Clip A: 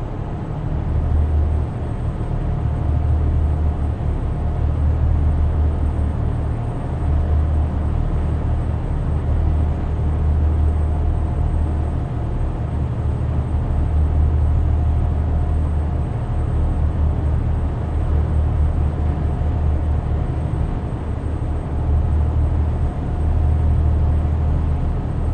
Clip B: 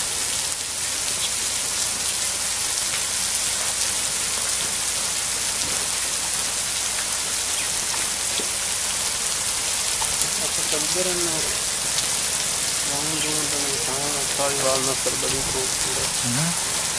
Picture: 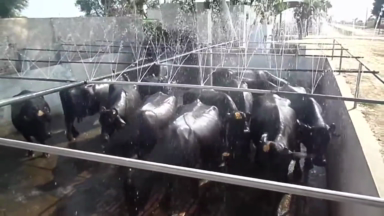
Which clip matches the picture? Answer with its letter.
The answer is B